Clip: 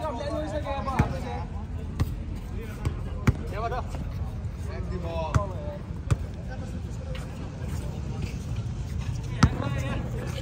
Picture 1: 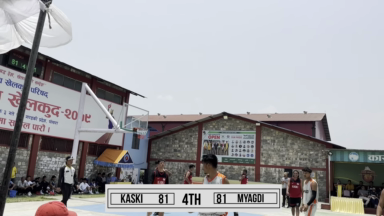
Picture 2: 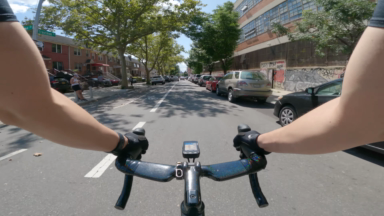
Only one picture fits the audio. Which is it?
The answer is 1